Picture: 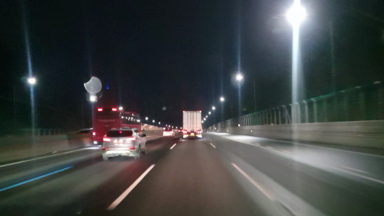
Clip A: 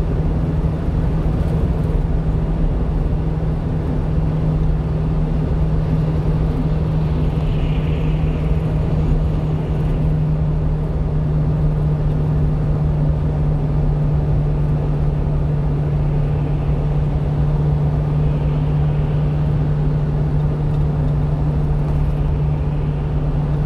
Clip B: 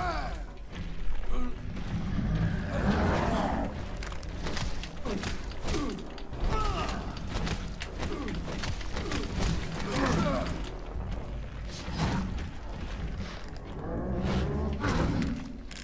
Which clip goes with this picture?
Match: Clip A